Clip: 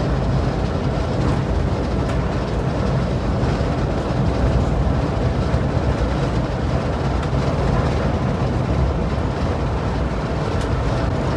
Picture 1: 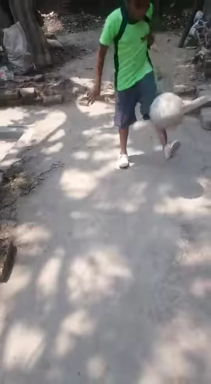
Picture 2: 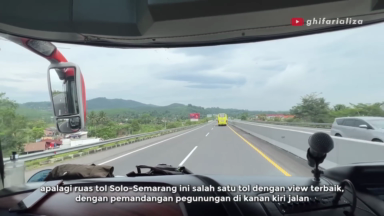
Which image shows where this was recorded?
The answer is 2